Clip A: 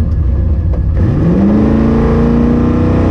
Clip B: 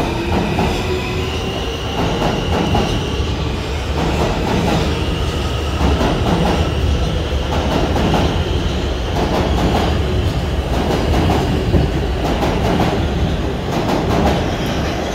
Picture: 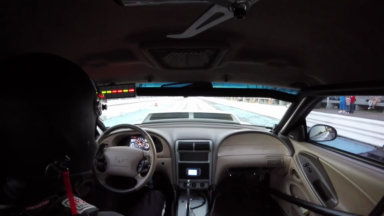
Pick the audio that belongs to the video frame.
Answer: A